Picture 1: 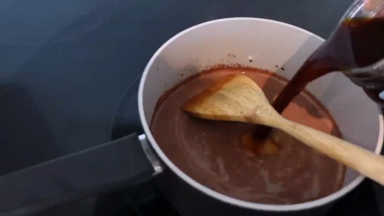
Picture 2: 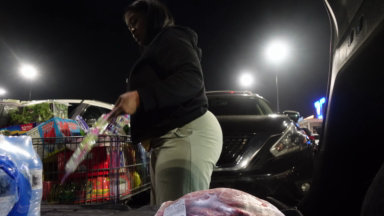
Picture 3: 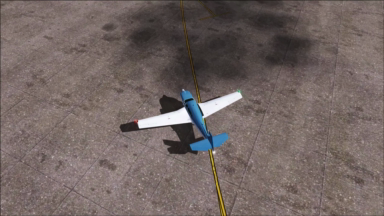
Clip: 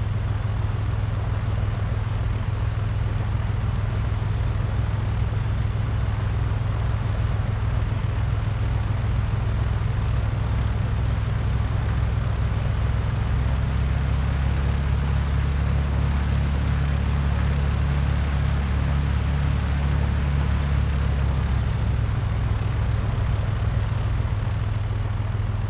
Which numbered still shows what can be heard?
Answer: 3